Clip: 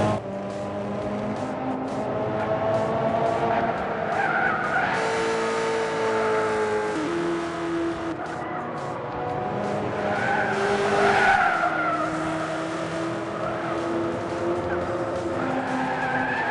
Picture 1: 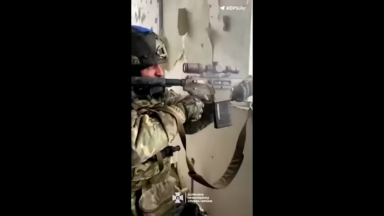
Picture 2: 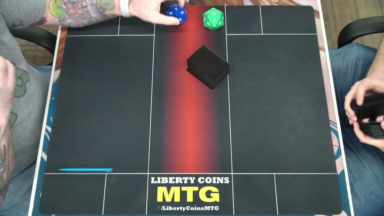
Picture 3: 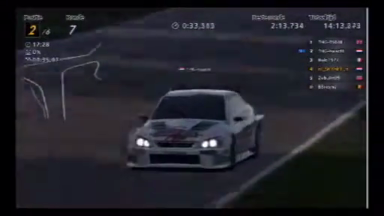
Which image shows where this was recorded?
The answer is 3